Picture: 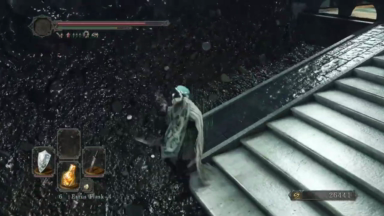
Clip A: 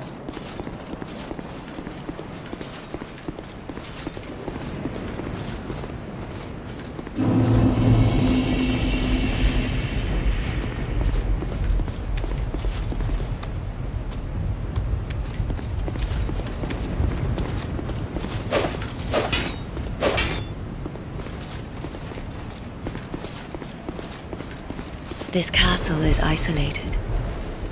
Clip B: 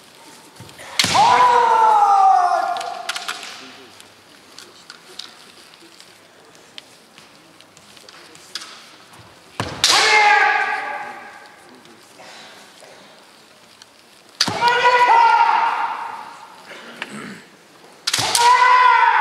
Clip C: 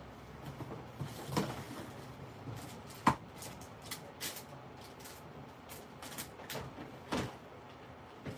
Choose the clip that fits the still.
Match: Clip A